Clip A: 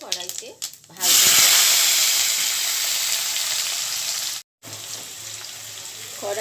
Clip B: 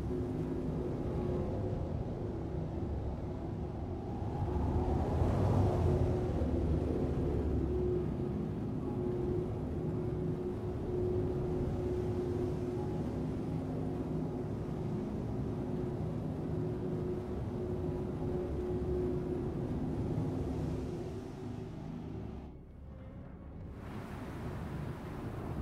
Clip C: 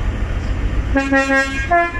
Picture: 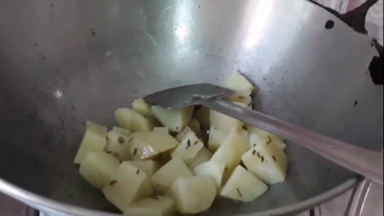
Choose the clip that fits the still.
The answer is A